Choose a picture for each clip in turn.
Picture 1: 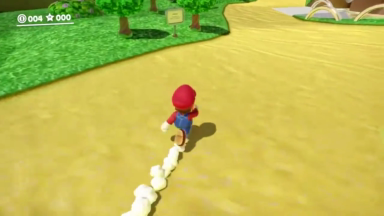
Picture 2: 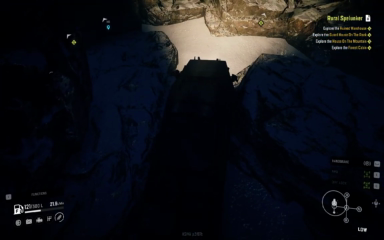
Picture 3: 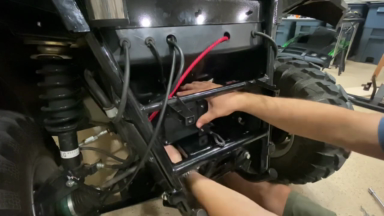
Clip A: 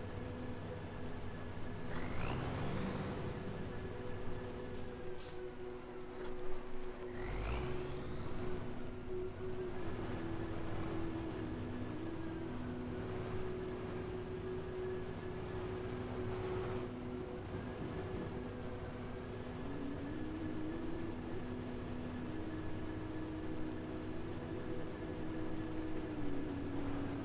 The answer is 2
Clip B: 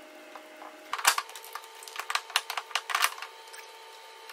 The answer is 3